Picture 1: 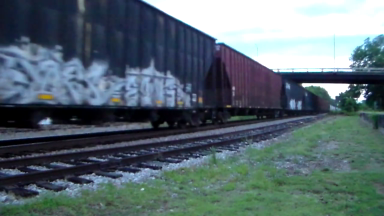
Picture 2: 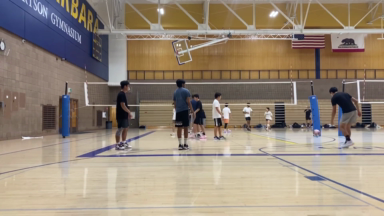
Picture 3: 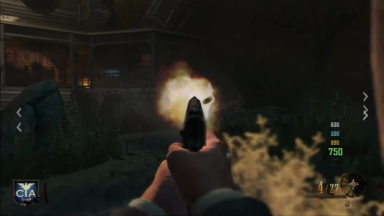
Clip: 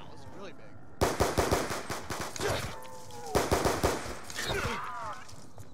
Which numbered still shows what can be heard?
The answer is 3